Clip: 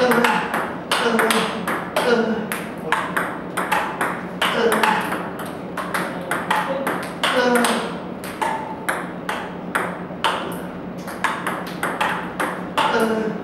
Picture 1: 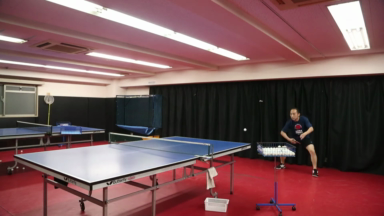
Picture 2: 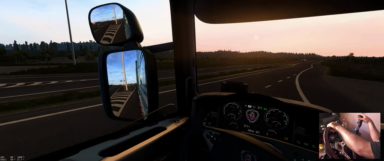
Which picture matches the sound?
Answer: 1